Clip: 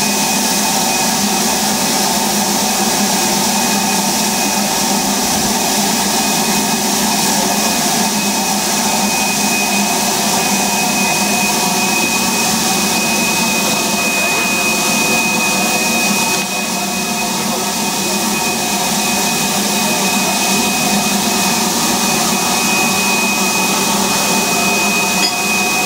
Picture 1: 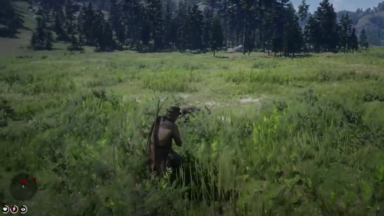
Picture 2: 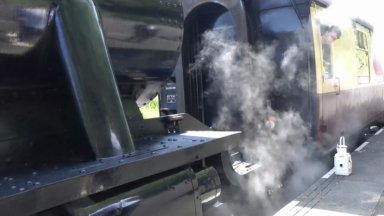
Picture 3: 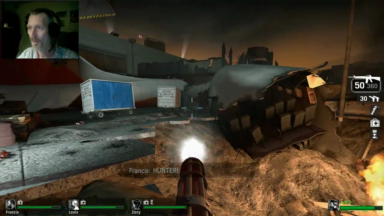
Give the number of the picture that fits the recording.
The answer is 2